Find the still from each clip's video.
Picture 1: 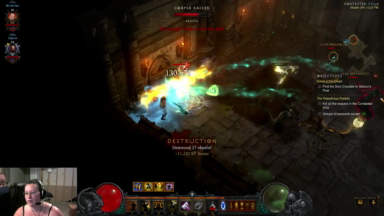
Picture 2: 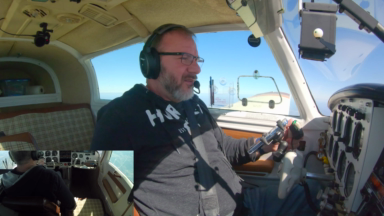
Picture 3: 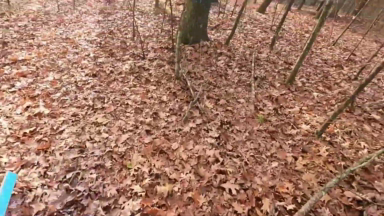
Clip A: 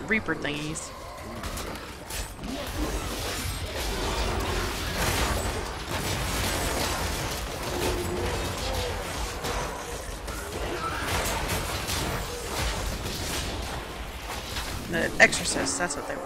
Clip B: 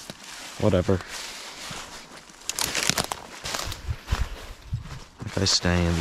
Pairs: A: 1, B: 3